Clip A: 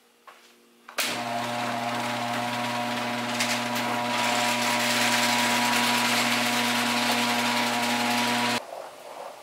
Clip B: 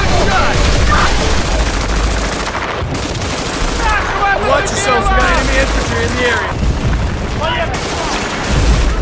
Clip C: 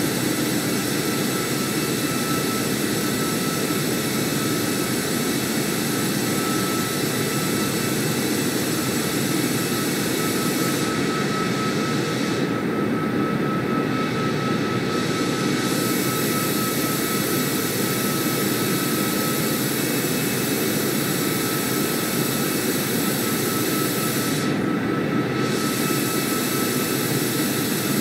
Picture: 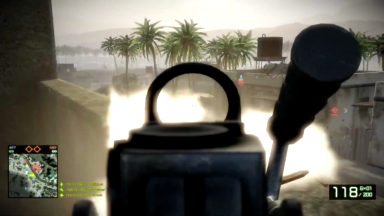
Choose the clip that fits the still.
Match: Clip B